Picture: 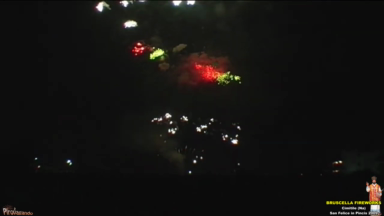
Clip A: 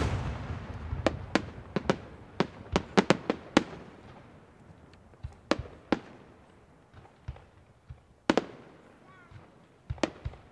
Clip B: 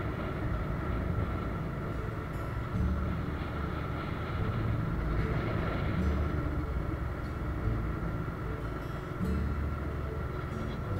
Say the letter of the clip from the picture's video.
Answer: A